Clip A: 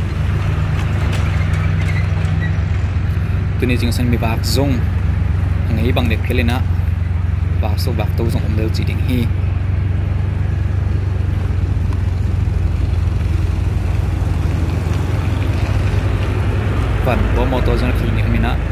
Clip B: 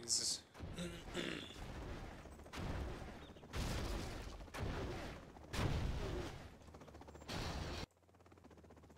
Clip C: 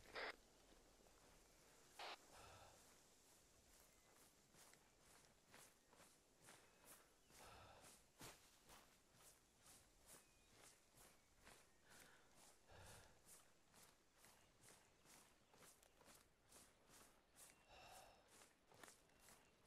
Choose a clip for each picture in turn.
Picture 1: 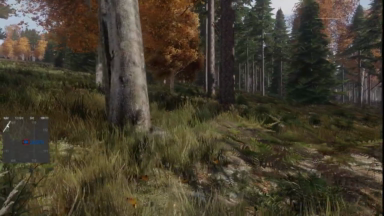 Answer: C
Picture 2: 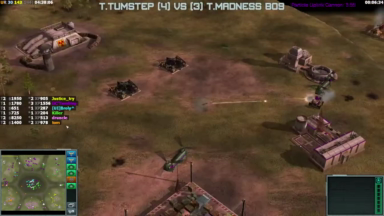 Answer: B